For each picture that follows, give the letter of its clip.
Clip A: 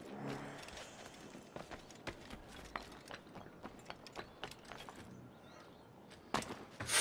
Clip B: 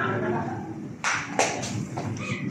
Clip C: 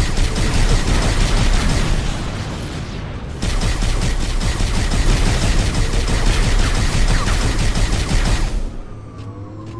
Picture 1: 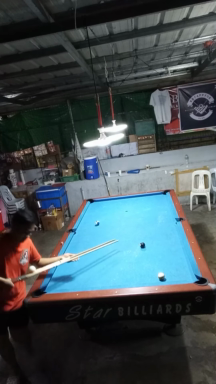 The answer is B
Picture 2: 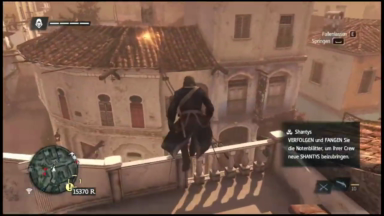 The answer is A